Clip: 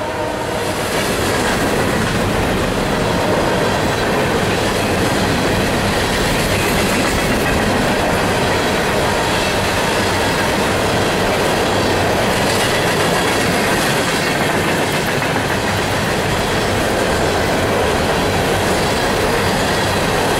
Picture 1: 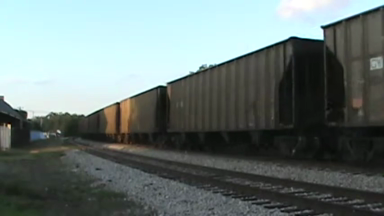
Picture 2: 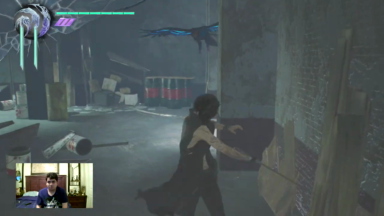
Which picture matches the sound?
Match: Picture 1